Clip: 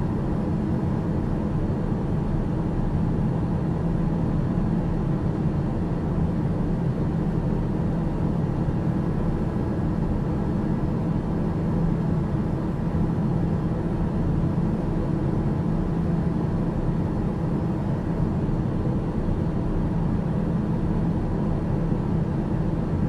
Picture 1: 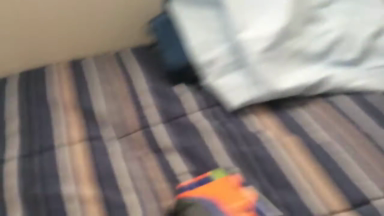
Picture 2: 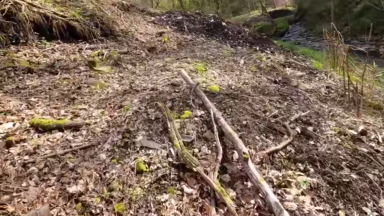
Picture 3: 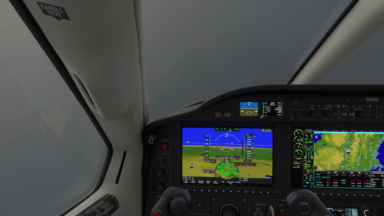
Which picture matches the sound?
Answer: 3